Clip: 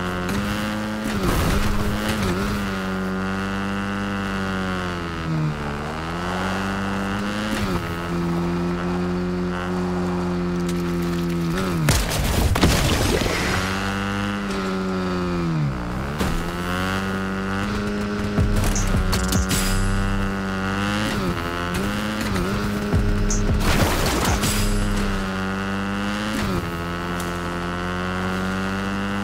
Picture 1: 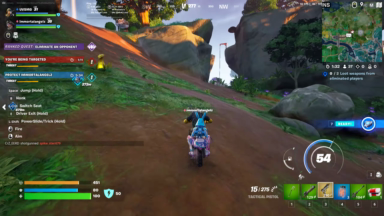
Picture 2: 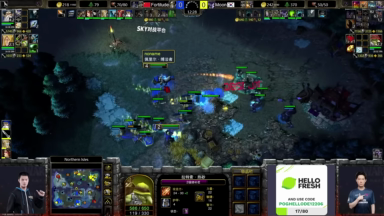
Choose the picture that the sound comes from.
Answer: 1